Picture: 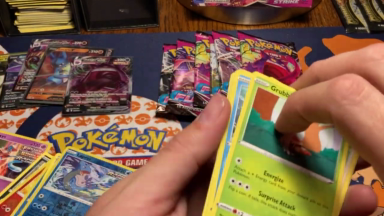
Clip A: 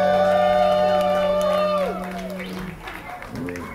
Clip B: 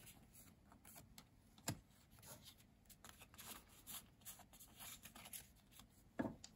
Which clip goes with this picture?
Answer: B